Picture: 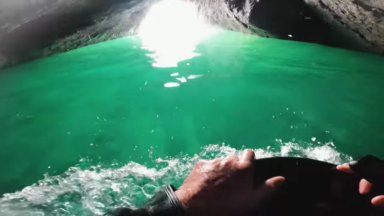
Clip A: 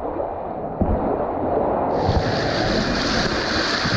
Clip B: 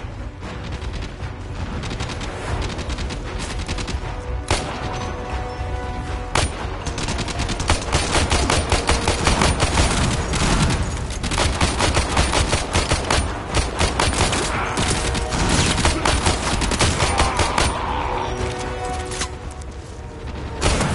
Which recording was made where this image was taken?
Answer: A